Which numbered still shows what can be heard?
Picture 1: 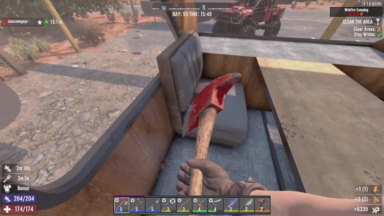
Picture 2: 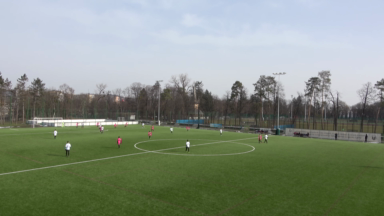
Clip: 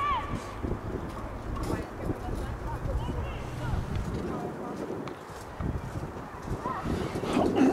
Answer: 2